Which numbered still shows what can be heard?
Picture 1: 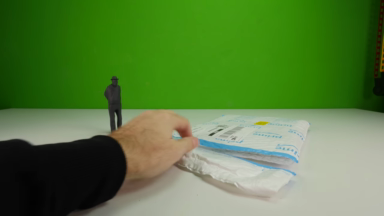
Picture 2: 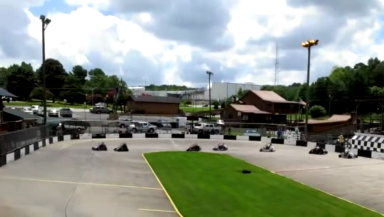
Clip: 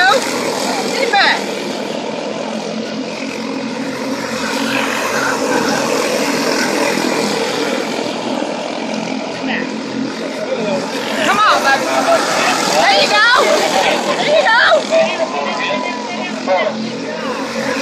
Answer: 2